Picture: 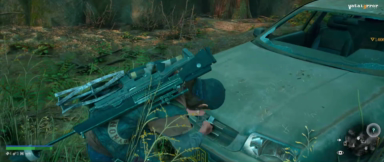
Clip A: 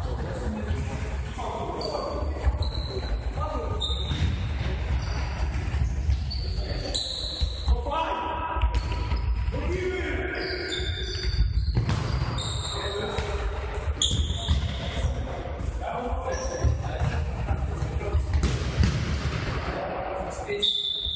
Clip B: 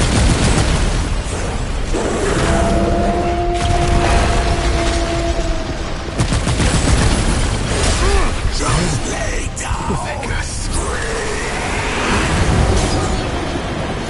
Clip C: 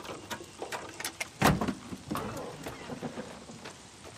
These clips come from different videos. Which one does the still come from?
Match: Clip C